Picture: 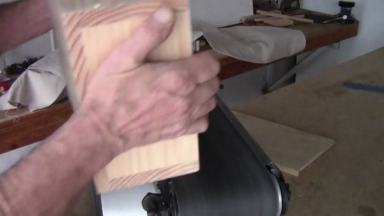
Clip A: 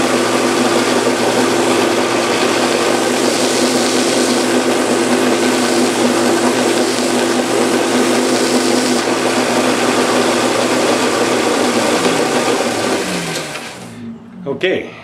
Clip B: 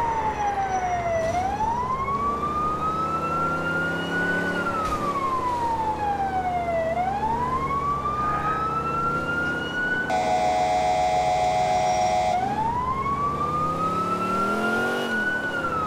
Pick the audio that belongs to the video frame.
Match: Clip A